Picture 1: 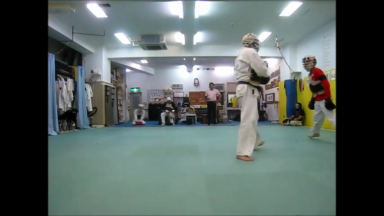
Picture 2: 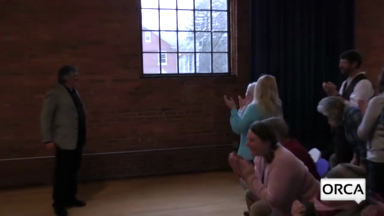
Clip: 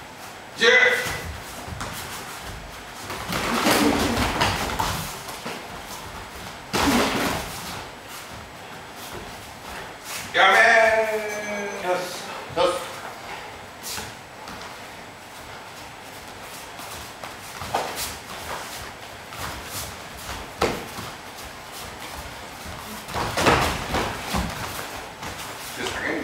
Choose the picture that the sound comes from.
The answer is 1